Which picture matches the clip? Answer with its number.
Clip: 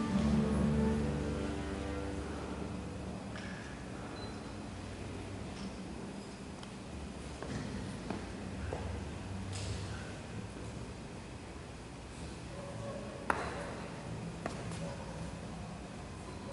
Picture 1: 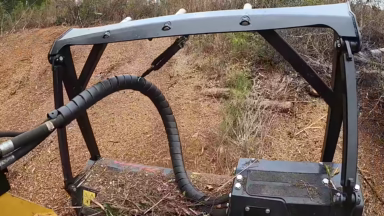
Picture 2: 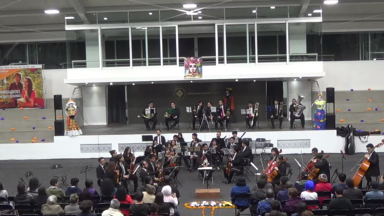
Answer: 2